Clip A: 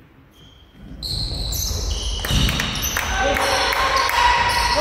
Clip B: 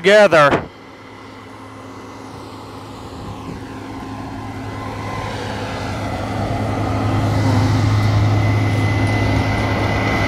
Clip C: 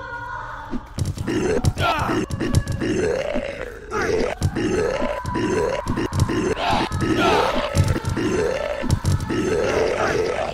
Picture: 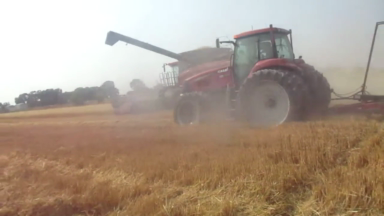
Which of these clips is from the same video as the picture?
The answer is B